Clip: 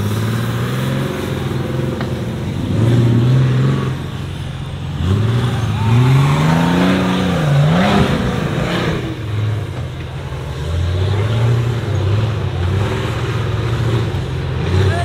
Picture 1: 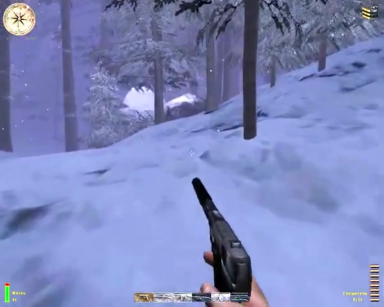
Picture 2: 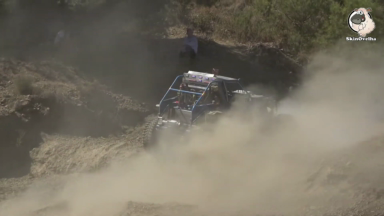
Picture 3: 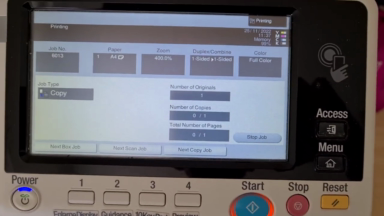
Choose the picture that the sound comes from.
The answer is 2